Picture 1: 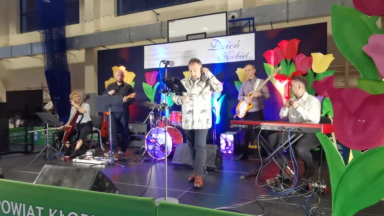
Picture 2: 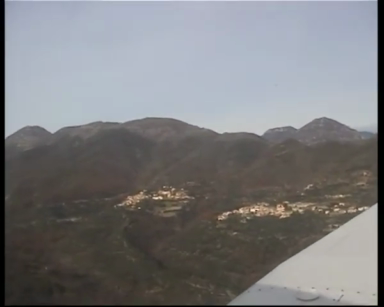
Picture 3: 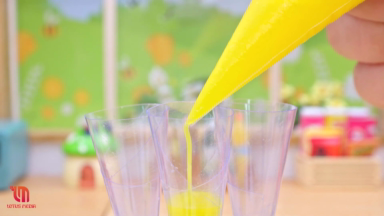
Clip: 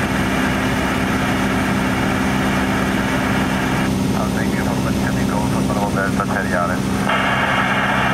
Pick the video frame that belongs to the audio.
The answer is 2